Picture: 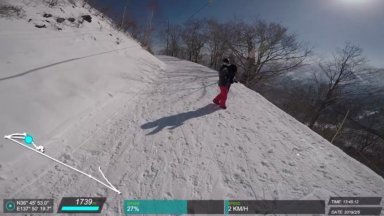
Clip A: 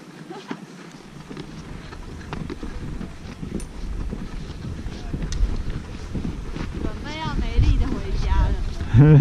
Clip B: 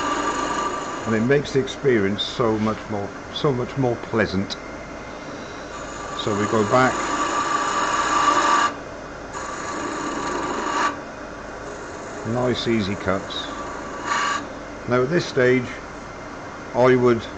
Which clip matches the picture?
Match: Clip A